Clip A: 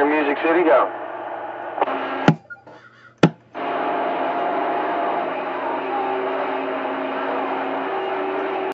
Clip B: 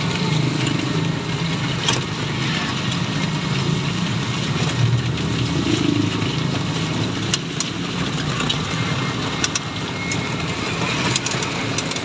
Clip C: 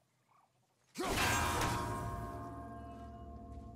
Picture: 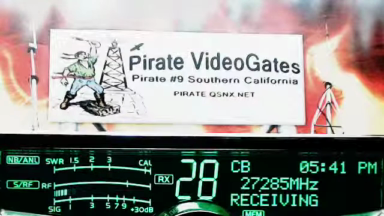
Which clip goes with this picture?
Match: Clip A